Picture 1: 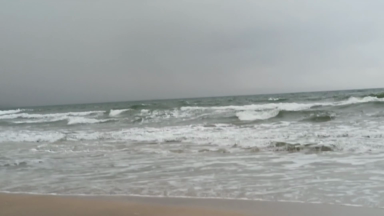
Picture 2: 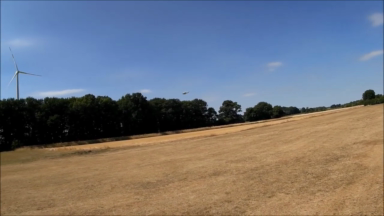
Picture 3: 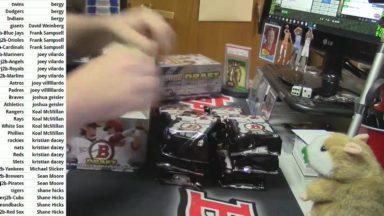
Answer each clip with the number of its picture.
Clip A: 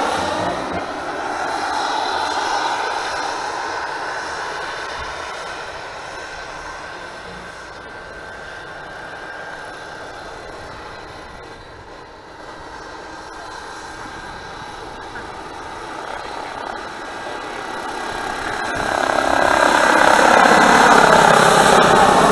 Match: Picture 2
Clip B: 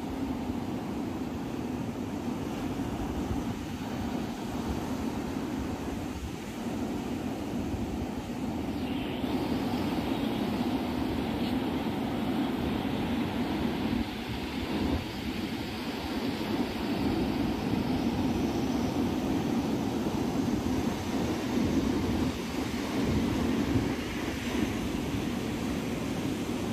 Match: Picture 1